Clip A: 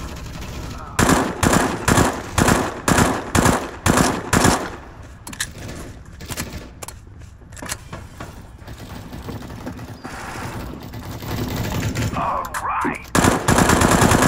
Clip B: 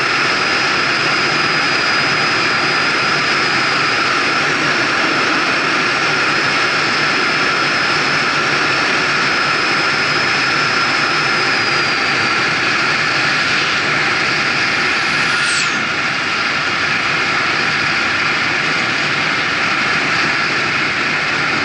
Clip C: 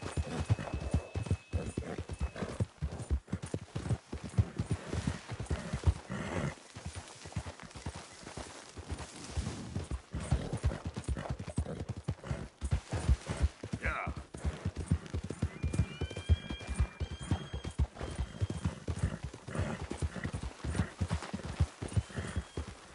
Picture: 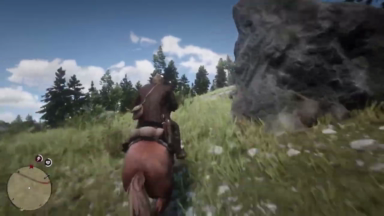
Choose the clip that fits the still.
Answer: C